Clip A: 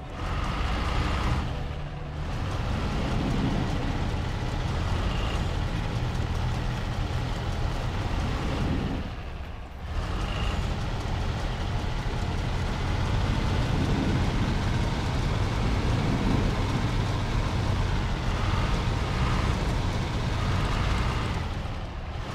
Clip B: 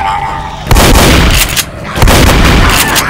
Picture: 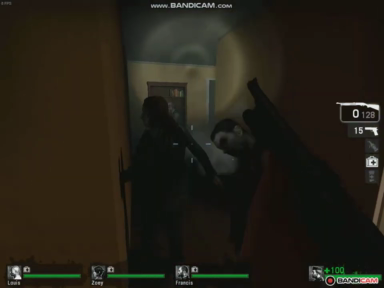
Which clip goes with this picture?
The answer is B